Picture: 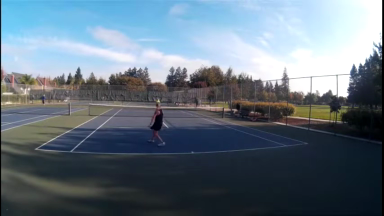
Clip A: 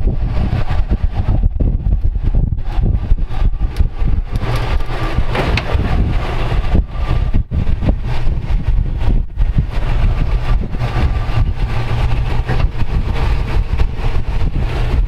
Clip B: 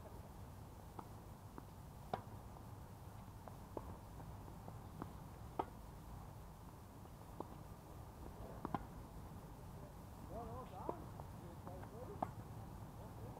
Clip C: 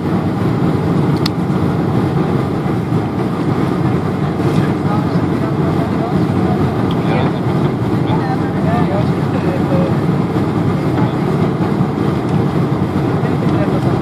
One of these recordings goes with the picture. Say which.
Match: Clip B